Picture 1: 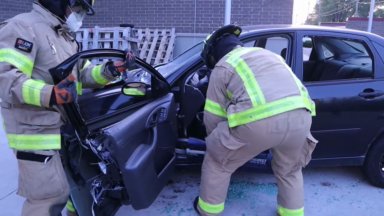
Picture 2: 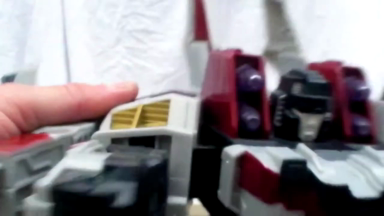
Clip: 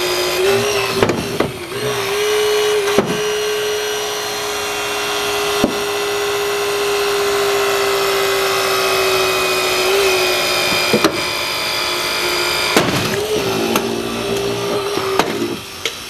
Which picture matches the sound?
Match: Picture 1